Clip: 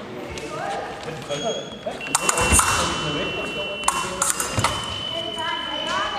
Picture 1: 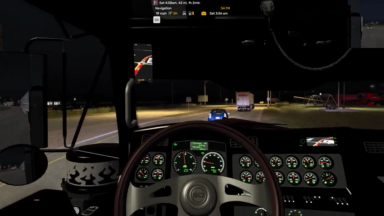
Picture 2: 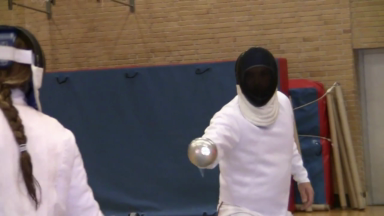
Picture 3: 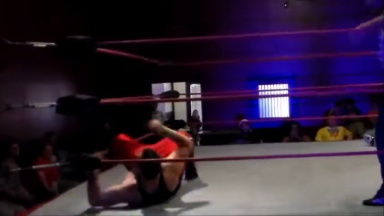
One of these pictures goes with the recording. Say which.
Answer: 2